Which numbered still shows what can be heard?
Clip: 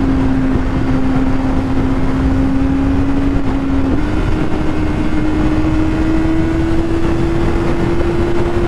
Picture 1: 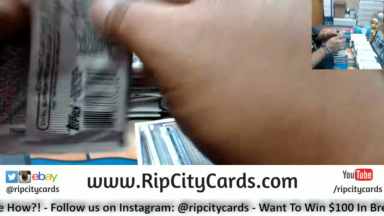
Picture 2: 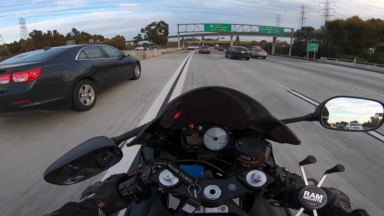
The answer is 2